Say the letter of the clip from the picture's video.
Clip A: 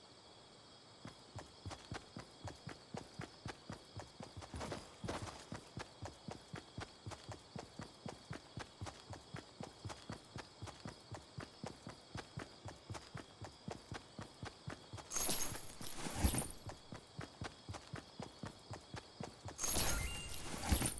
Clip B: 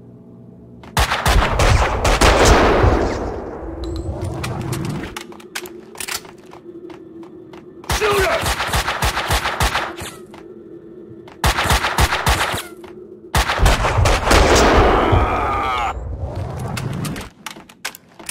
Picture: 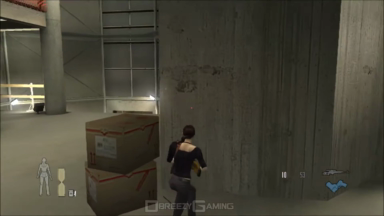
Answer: B